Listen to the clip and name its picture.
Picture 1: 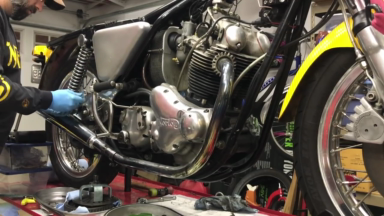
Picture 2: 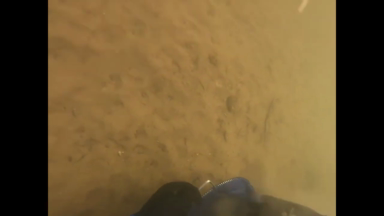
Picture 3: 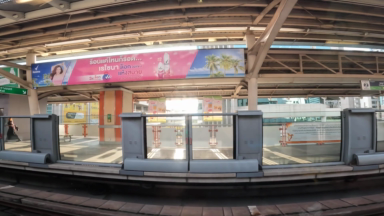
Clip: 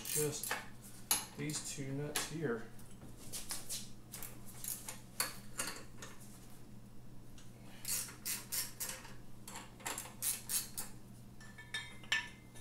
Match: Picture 1